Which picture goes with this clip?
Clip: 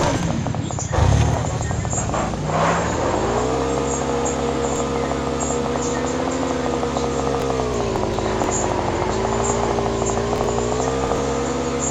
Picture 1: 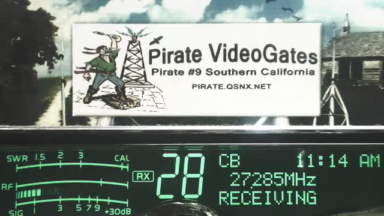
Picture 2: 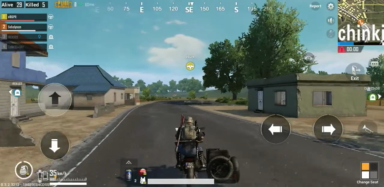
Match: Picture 2